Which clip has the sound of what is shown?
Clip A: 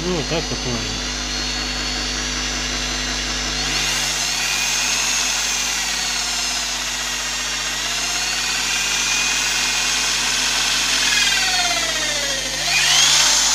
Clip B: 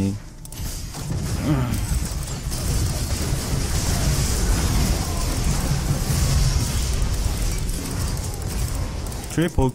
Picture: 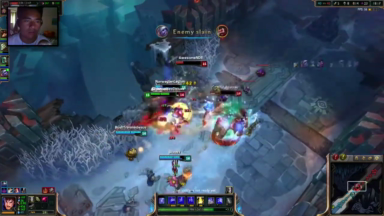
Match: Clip B